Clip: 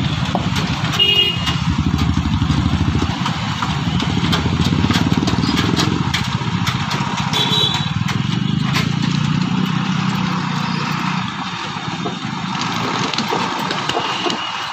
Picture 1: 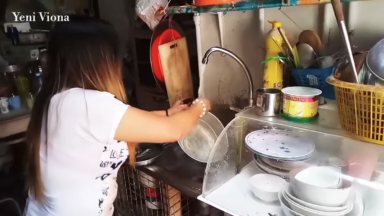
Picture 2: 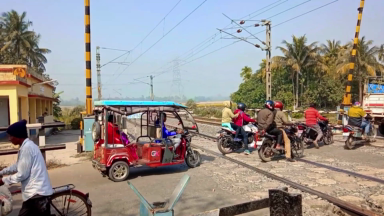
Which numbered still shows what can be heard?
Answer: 2